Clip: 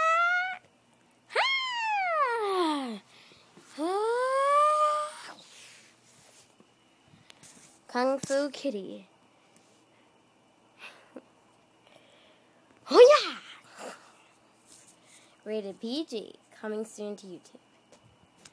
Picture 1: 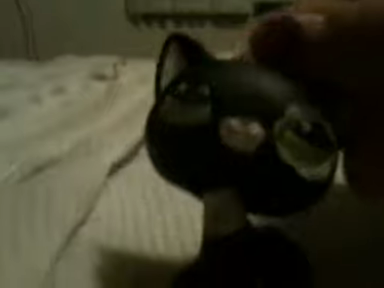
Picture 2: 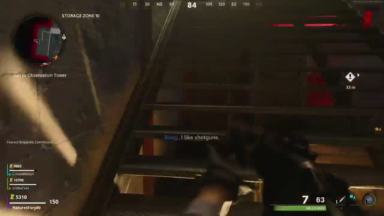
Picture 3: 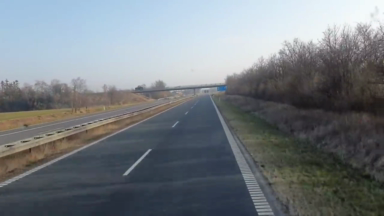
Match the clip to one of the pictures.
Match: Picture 1